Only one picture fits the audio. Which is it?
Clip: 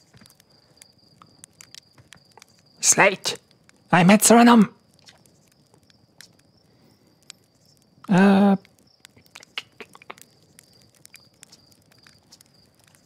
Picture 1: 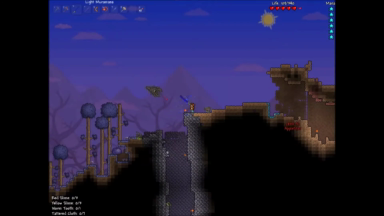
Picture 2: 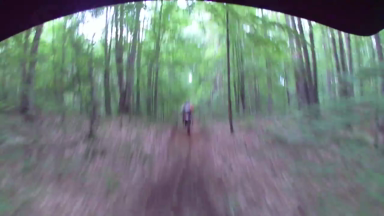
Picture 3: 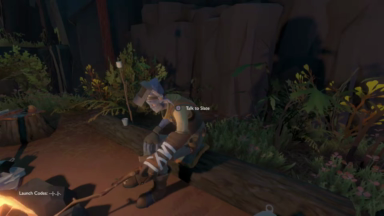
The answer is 3